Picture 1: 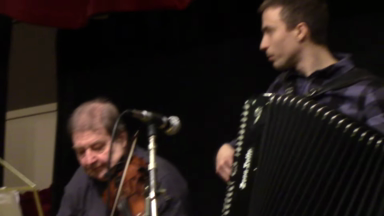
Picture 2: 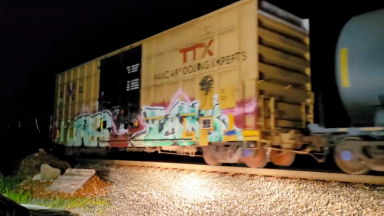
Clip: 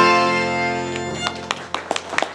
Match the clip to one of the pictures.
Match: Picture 1